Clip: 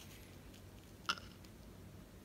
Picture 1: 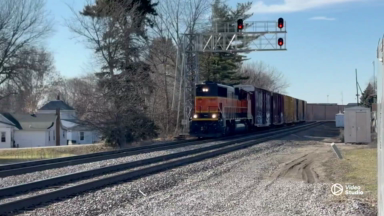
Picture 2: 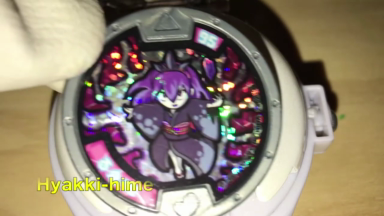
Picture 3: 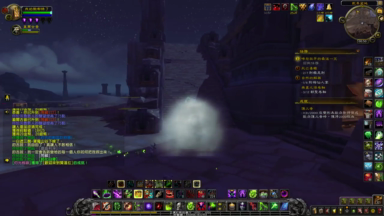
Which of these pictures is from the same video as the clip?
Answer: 2